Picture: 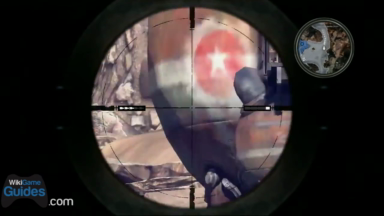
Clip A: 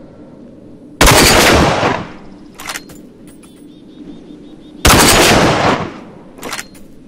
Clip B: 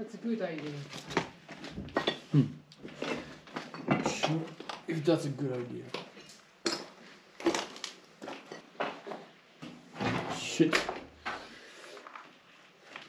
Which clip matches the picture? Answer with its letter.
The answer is A